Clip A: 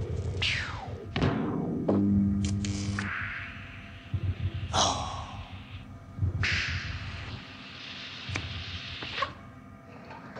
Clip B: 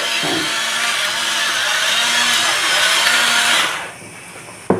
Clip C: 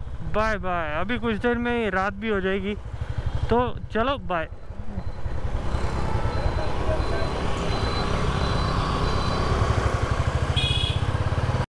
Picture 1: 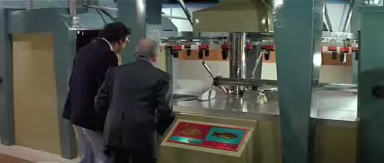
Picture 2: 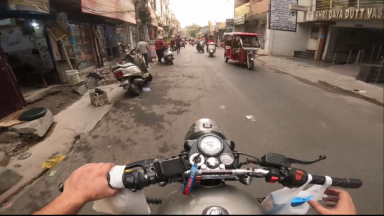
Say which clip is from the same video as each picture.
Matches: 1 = A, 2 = C